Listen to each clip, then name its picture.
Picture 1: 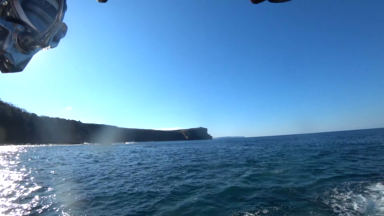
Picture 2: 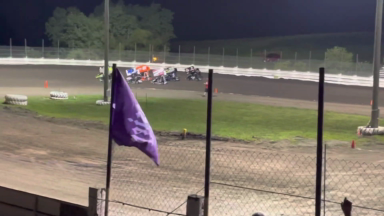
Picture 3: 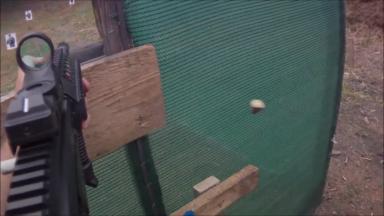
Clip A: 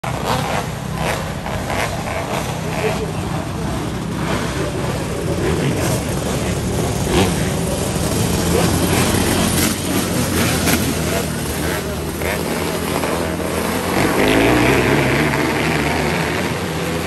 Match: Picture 2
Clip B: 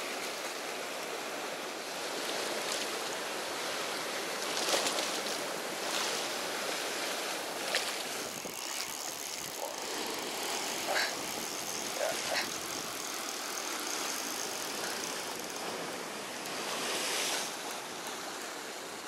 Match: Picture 1